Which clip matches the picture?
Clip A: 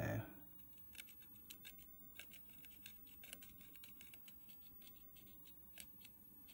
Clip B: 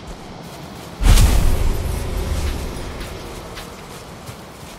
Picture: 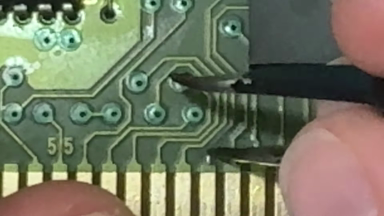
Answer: A